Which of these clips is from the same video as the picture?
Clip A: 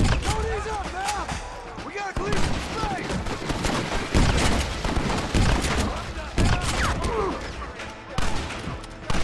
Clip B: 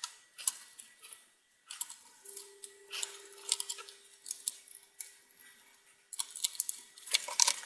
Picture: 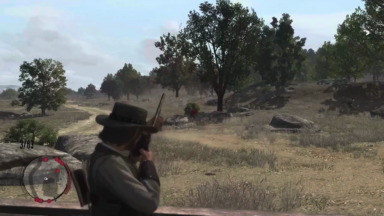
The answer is A